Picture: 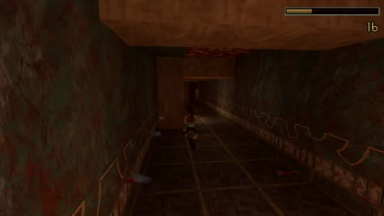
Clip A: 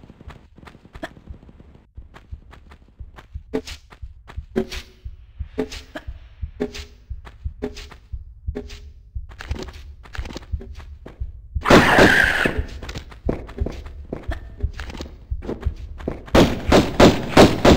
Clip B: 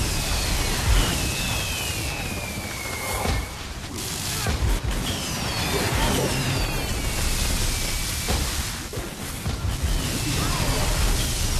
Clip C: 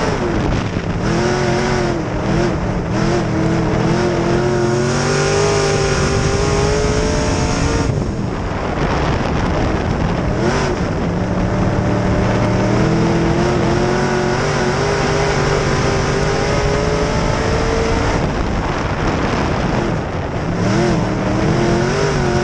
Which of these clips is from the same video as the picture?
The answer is A